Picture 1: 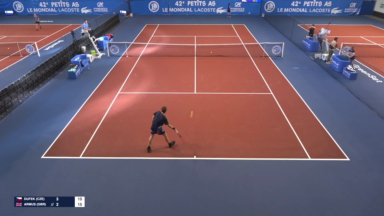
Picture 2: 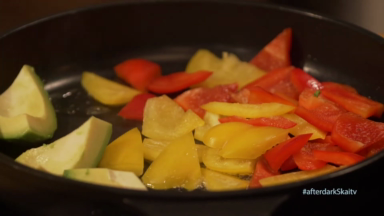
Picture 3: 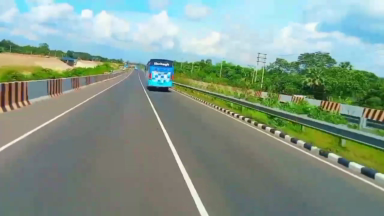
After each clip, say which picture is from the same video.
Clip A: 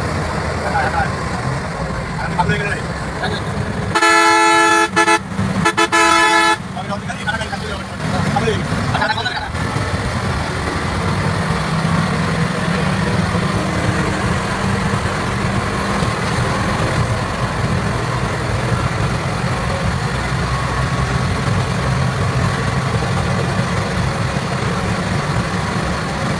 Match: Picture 3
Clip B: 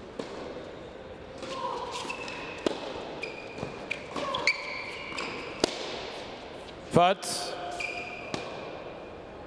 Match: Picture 1